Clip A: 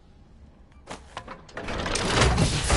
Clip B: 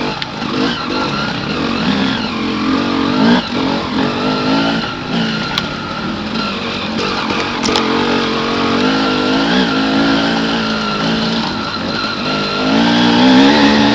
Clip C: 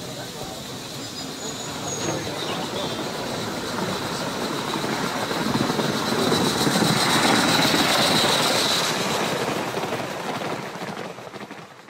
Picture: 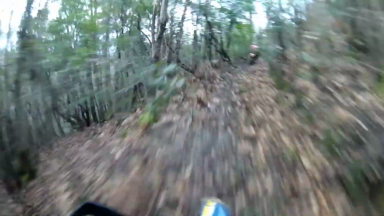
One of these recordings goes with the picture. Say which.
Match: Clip B